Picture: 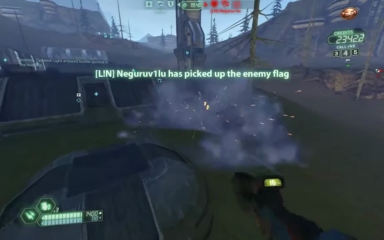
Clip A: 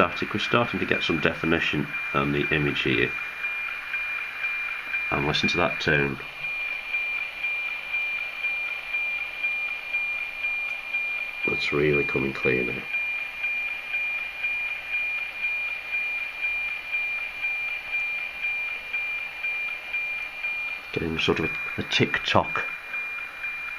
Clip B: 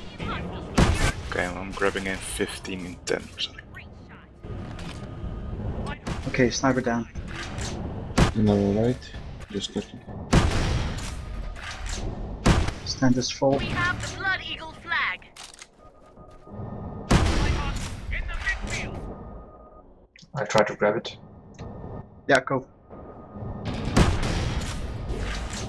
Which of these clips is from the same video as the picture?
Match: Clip B